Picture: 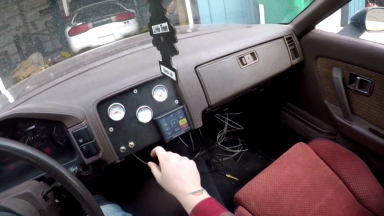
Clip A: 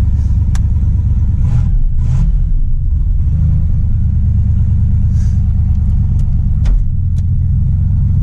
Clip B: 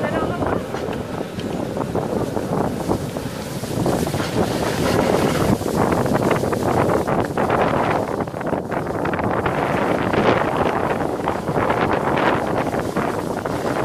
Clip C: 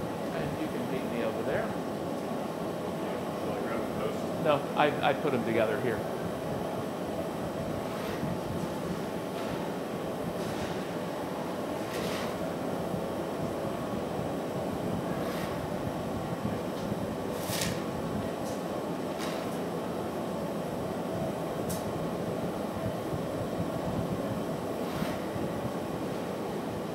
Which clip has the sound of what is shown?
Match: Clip A